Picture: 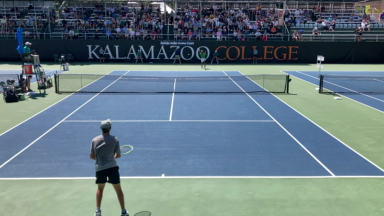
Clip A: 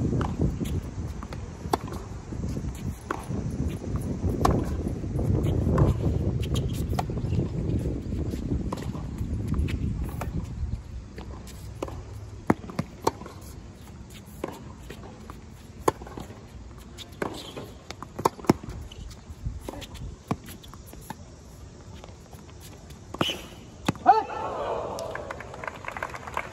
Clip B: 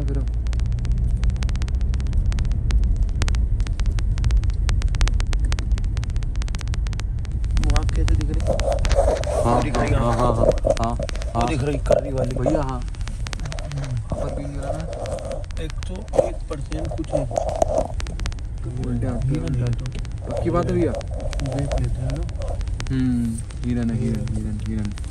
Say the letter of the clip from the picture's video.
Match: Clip A